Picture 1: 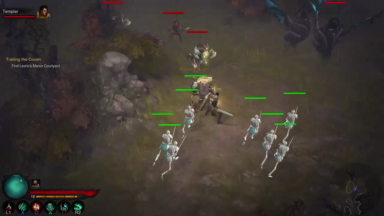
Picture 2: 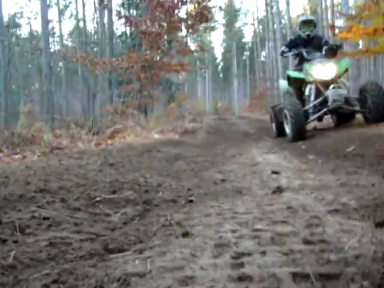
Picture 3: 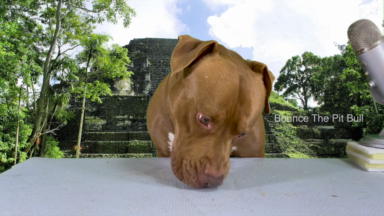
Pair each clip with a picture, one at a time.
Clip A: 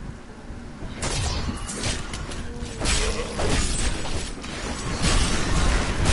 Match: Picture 1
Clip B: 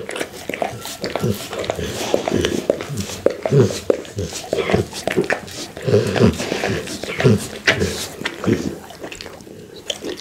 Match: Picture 3